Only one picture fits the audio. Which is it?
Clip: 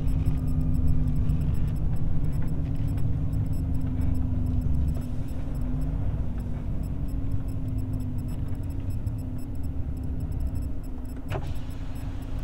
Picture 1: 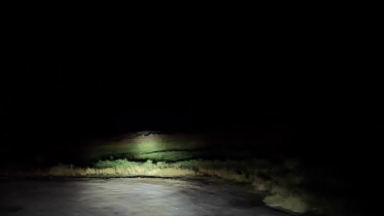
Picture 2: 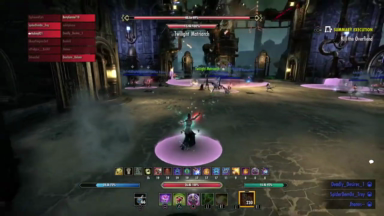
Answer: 1